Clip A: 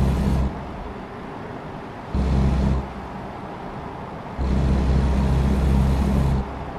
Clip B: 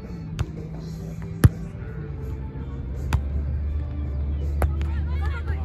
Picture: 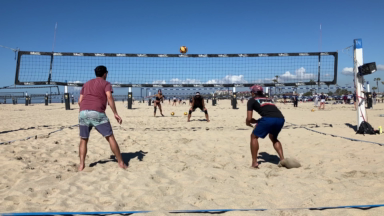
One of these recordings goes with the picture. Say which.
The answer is B